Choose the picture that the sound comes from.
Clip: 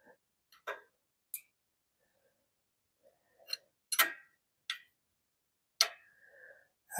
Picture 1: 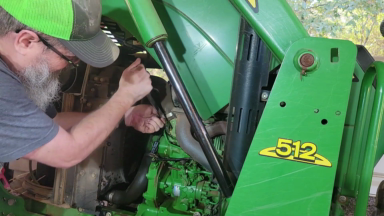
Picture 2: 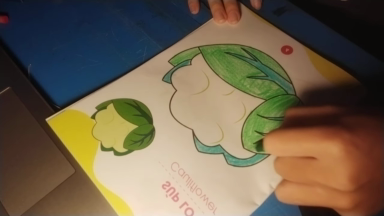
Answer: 1